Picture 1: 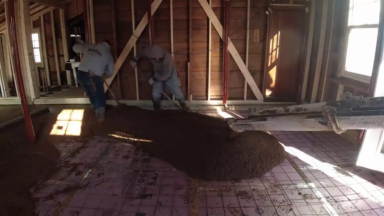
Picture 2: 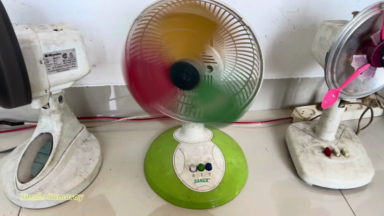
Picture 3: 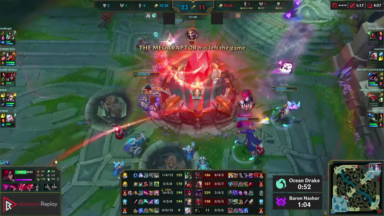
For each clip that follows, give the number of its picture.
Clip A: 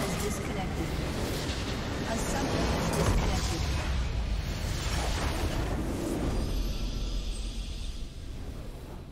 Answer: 3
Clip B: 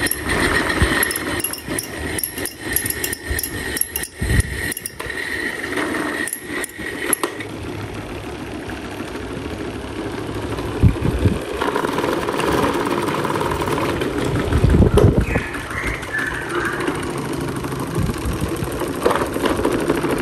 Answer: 2